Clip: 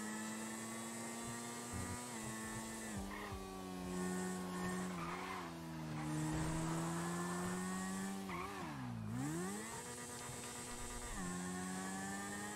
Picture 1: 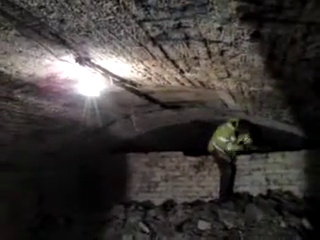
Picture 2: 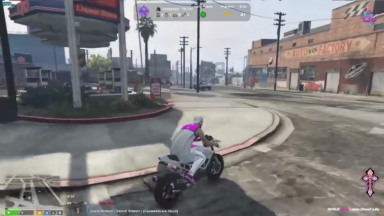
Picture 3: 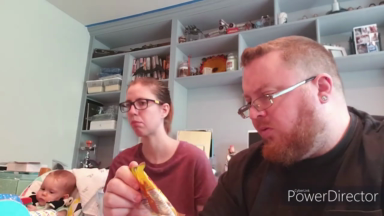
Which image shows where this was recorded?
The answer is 2